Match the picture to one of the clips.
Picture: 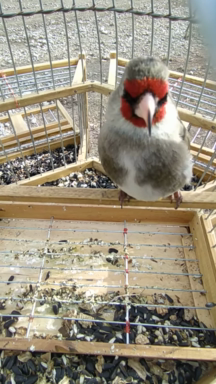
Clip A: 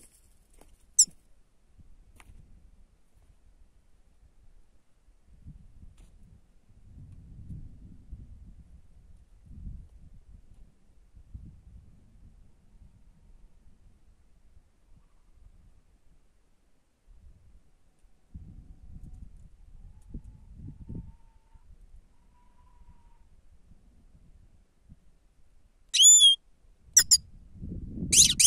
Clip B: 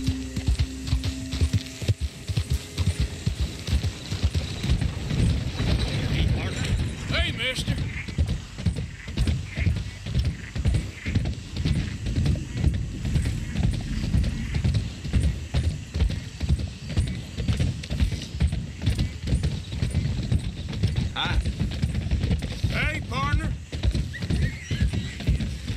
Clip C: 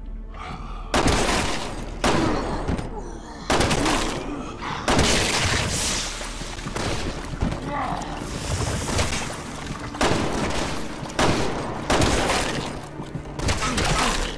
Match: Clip A